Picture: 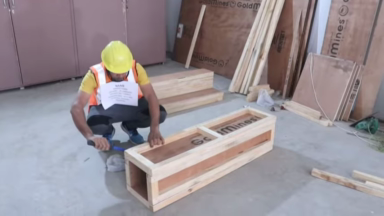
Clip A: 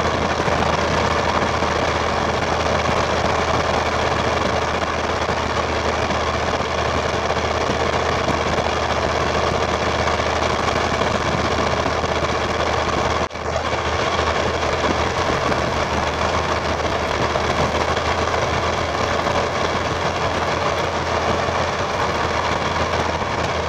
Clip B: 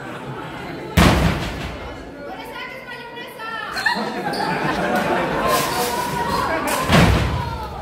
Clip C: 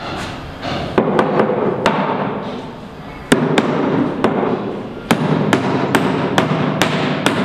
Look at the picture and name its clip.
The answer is C